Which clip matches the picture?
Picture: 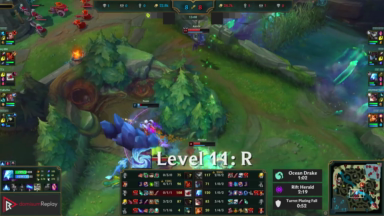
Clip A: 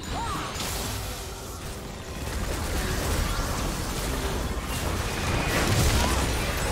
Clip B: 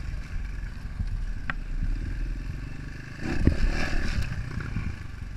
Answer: A